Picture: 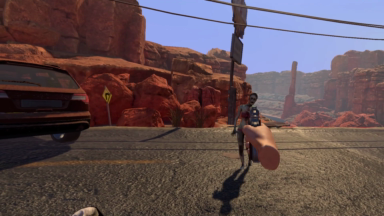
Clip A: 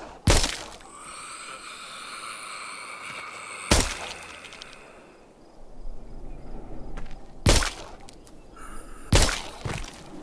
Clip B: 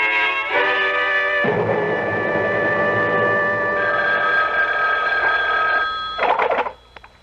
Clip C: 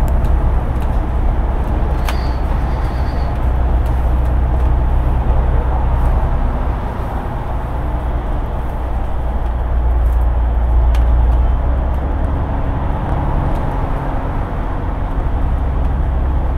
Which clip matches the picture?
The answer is A